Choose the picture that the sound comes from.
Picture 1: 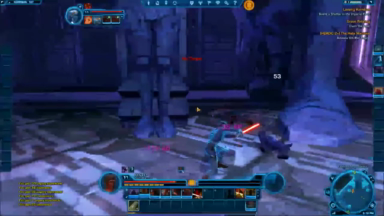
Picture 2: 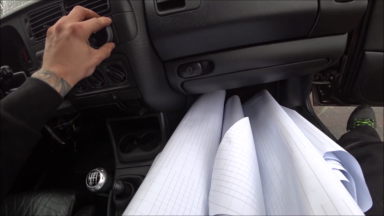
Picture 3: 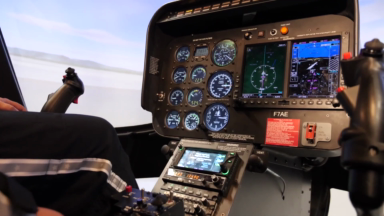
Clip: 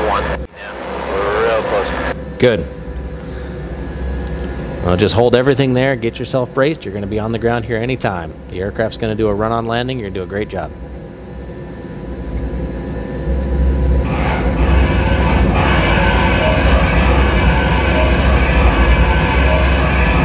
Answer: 3